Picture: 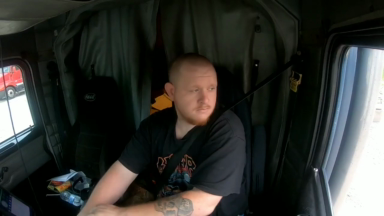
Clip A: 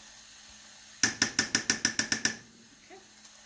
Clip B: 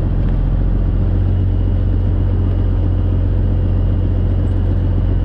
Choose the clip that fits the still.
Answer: B